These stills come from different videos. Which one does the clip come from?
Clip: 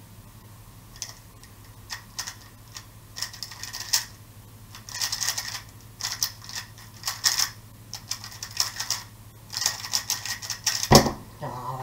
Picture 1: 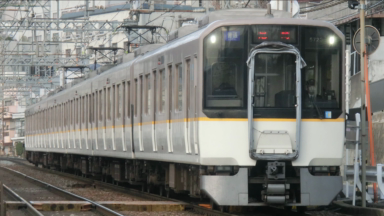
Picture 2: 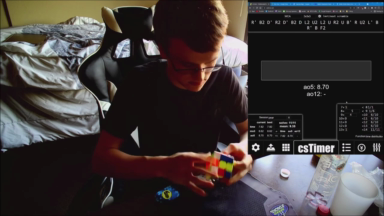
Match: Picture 2